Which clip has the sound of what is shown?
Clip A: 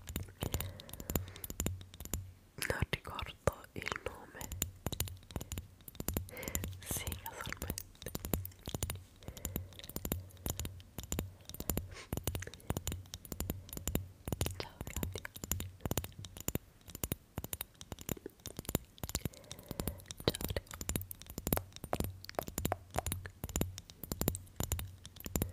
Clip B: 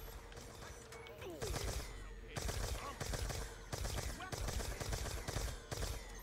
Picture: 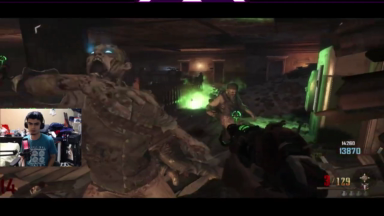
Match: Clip B